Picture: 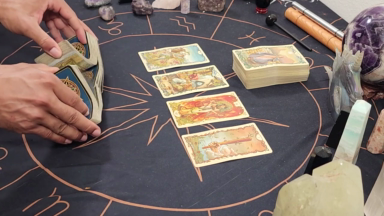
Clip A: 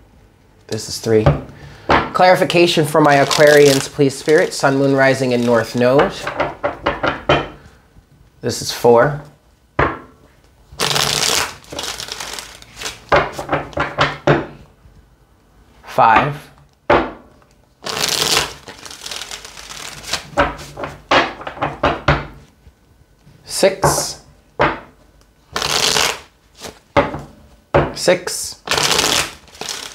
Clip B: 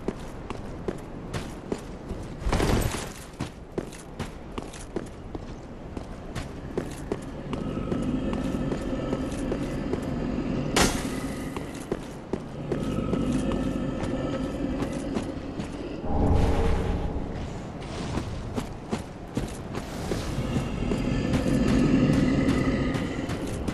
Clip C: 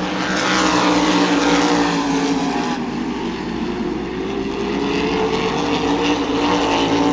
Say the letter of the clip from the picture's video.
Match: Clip A